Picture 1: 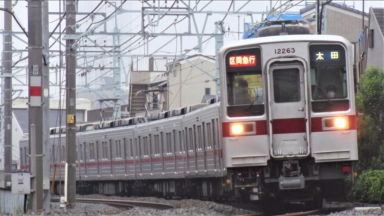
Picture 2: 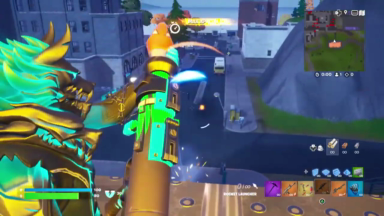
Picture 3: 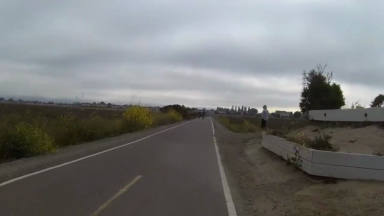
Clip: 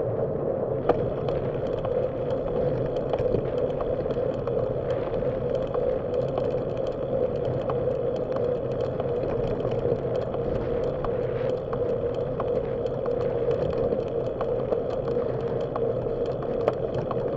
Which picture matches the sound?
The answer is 3